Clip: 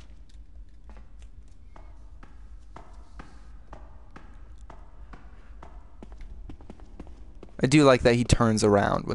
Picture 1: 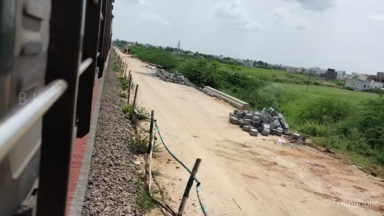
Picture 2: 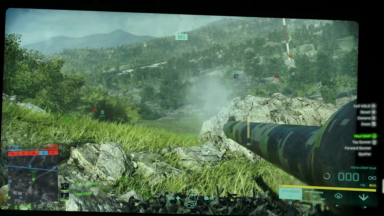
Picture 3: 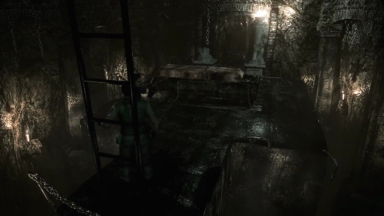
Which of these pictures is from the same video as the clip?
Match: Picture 3